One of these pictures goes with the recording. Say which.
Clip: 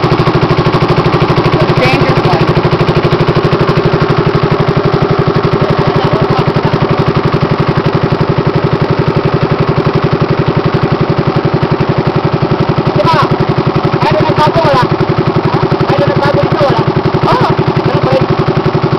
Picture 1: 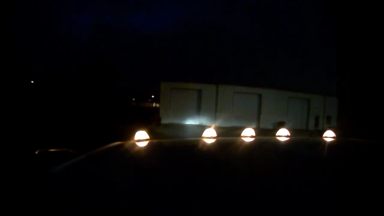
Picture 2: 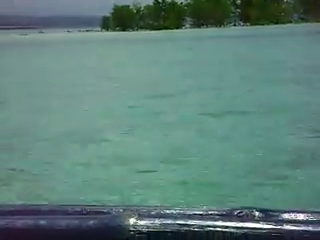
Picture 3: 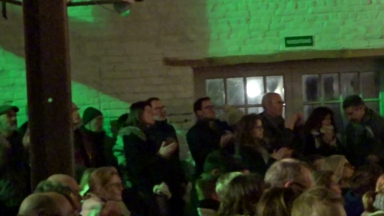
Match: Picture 2